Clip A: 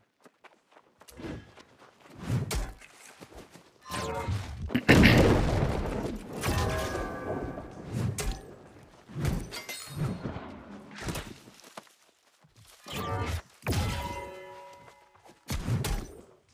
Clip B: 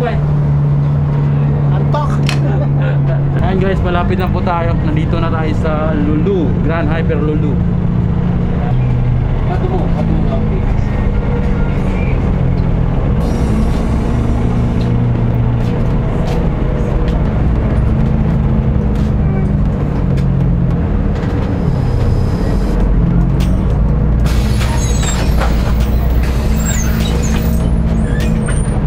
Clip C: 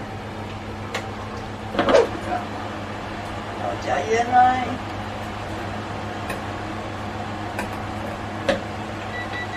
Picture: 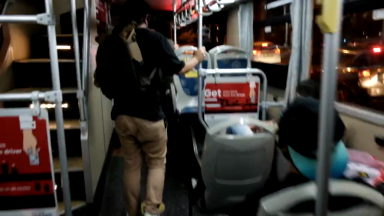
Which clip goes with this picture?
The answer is B